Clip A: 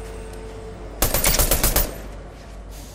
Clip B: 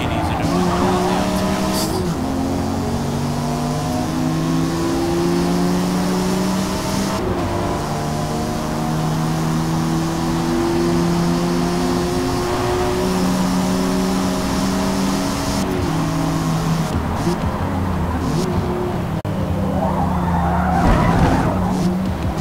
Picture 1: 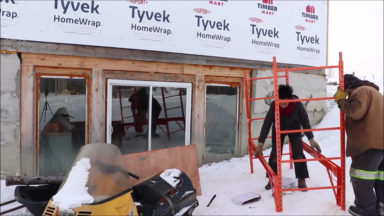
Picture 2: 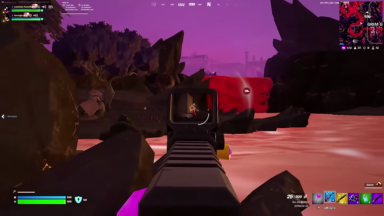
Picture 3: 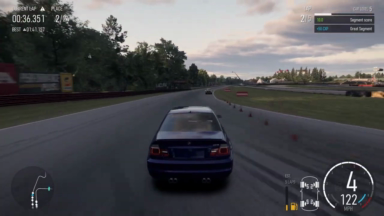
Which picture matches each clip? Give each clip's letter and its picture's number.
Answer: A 2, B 3